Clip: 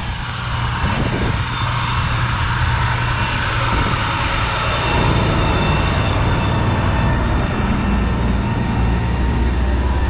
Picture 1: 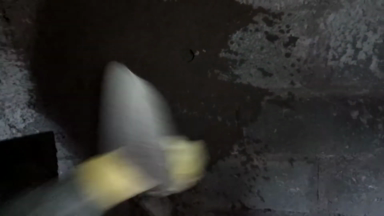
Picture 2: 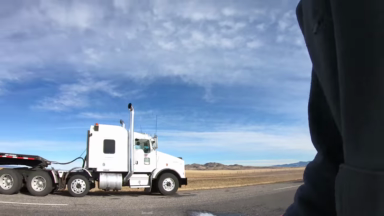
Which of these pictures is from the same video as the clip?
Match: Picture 2